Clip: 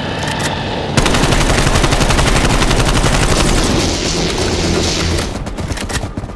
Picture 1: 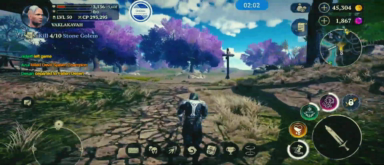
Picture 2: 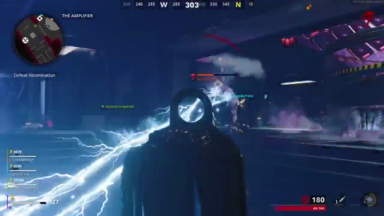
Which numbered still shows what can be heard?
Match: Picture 2